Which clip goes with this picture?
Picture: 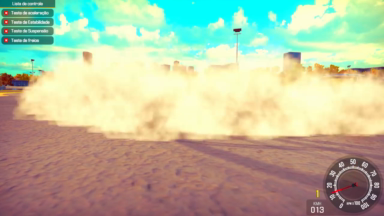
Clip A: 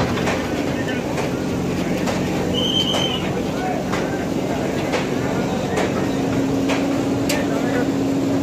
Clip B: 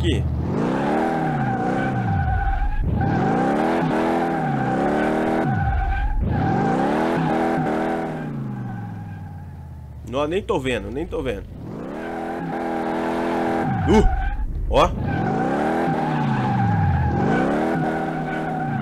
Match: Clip B